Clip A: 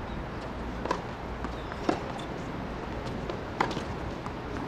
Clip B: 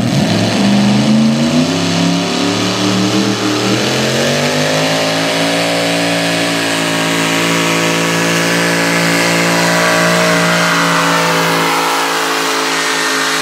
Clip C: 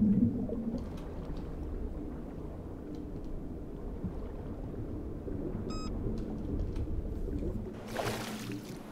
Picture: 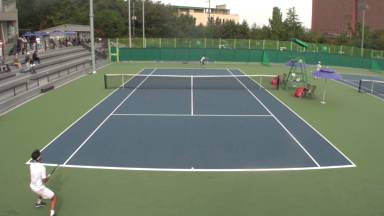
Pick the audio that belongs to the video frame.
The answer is A